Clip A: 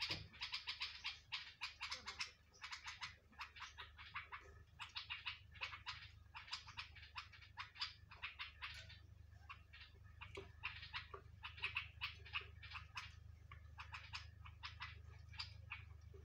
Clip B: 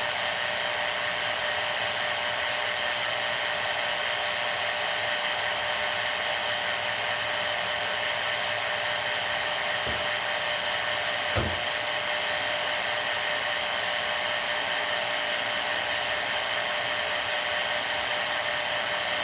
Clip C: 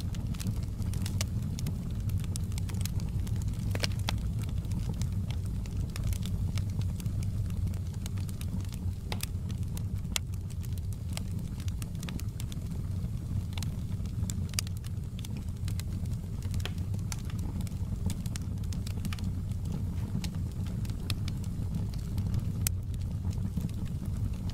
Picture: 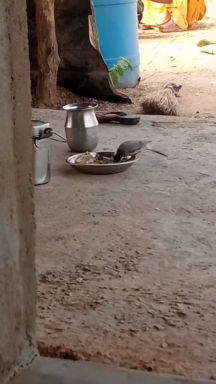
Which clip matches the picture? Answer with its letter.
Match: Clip A